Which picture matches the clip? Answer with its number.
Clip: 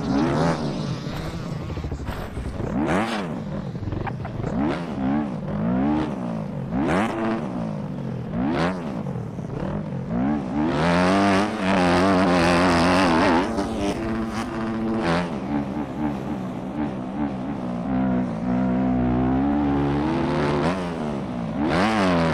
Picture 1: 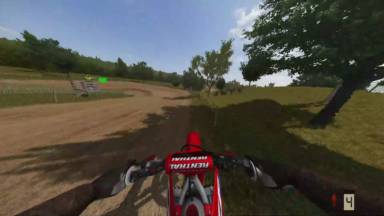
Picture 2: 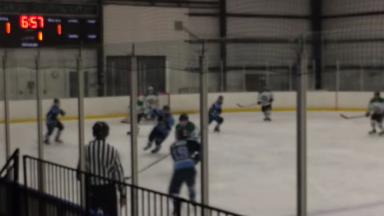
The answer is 1